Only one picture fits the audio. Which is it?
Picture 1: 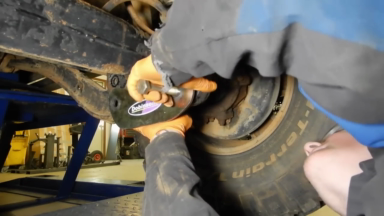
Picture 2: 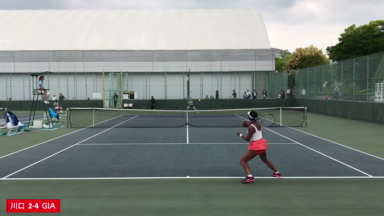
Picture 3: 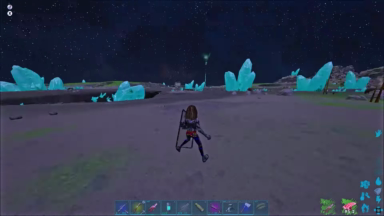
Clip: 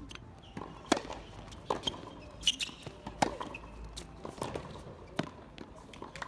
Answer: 2